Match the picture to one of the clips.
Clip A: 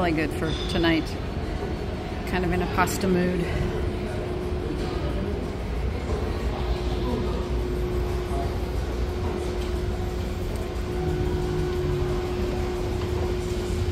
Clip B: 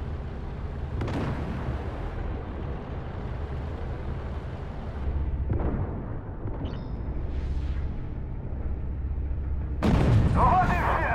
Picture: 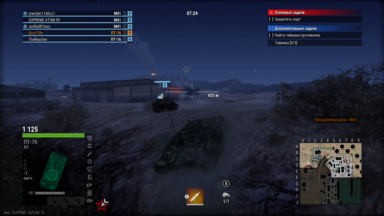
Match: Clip B